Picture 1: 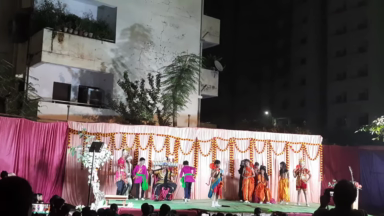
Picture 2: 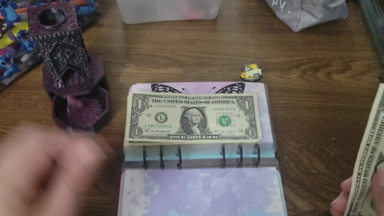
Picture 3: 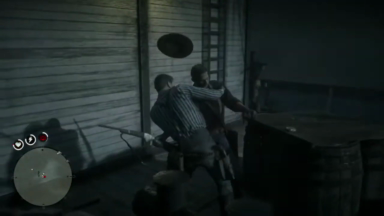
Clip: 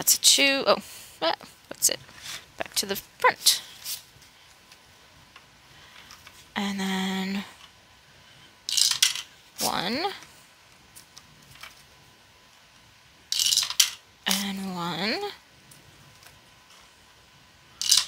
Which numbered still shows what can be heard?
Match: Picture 2